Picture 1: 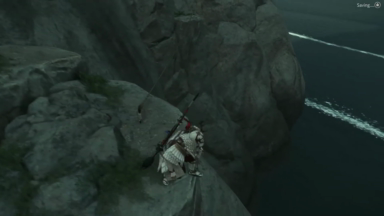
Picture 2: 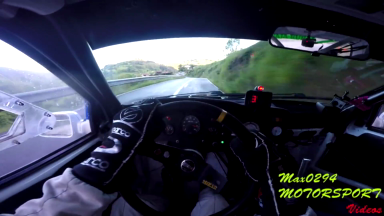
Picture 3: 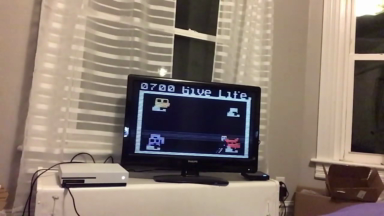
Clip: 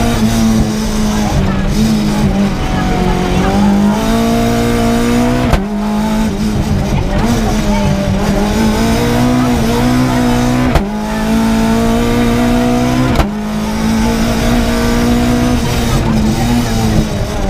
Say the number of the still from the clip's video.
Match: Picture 2